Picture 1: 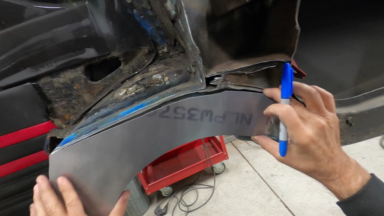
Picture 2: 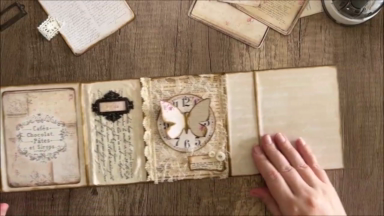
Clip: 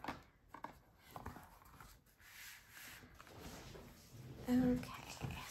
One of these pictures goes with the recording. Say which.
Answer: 2